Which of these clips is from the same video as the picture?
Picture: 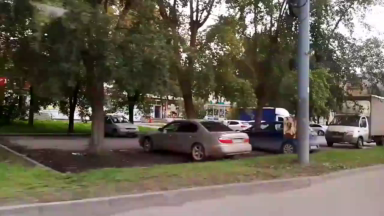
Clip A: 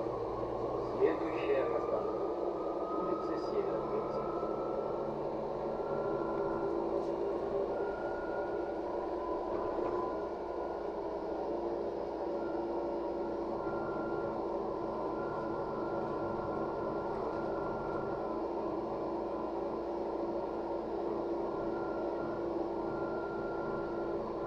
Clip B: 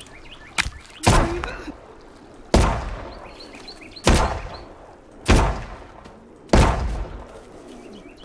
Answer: A